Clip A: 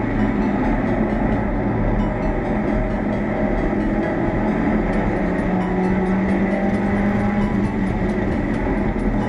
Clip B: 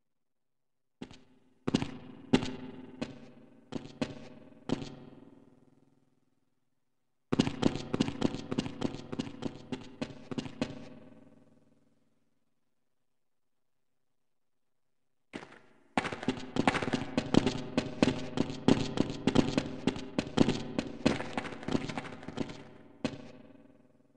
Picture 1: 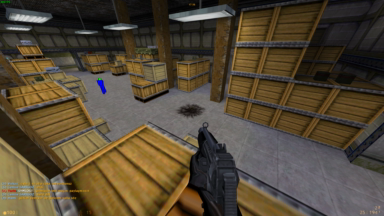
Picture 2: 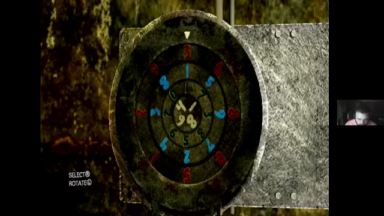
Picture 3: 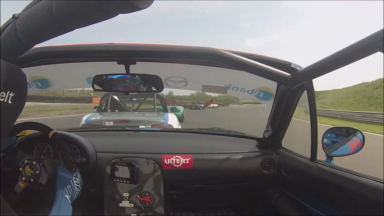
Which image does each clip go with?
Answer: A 3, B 1